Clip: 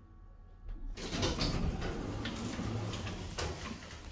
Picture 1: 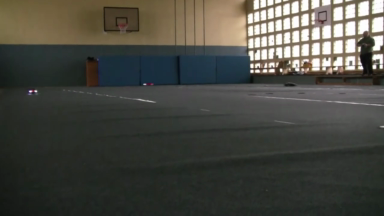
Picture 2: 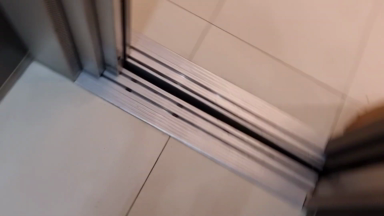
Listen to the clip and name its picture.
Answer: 2